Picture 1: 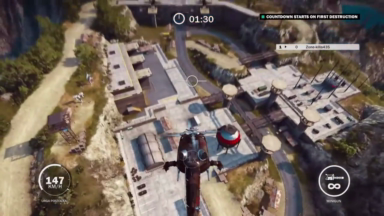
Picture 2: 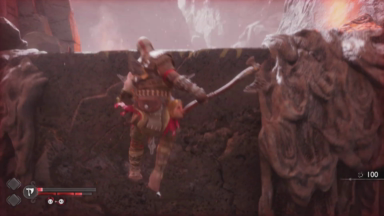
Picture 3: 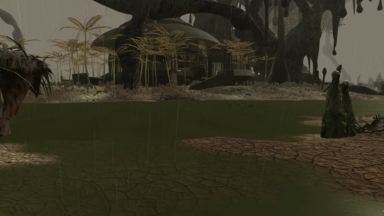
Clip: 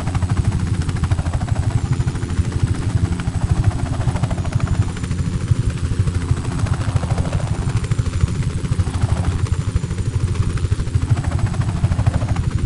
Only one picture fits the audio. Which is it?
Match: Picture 1